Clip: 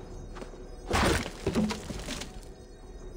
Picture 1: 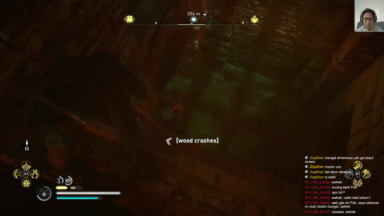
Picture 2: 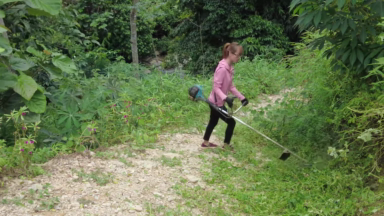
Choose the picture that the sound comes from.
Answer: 1